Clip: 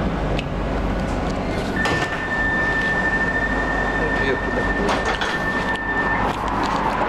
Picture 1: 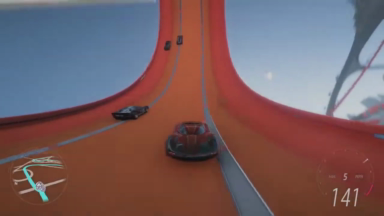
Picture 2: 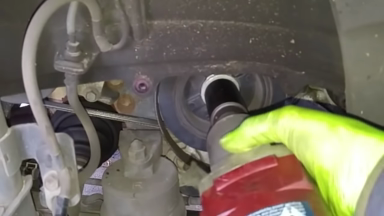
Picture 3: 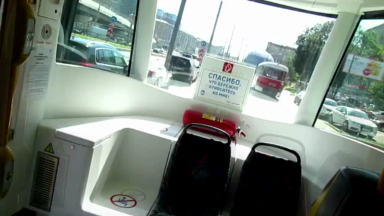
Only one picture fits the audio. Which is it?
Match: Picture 3